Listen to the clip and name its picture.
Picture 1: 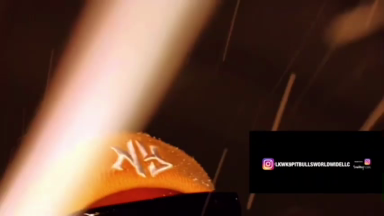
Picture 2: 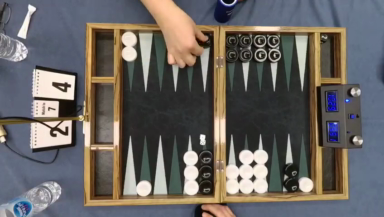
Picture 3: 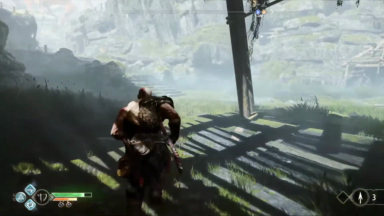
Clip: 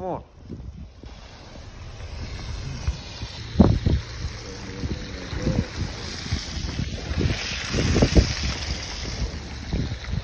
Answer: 1